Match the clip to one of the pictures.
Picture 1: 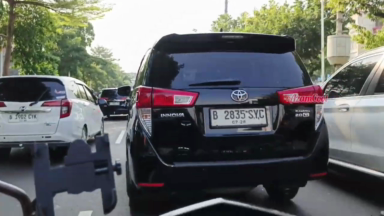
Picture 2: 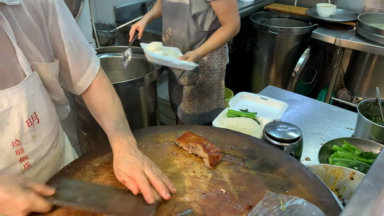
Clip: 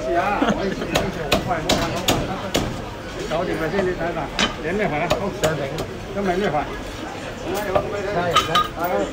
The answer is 2